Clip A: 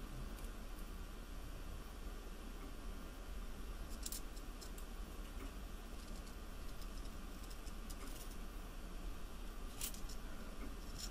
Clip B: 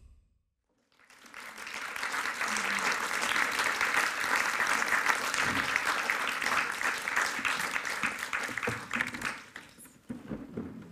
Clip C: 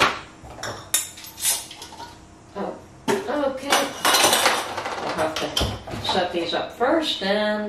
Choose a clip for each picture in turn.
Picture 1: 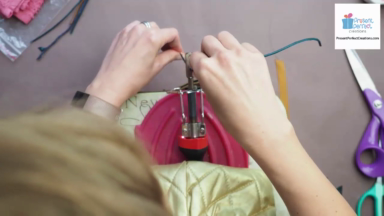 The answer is A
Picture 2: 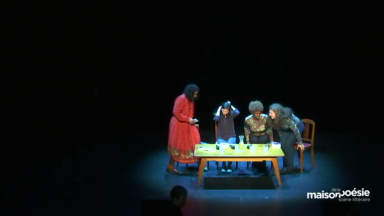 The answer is B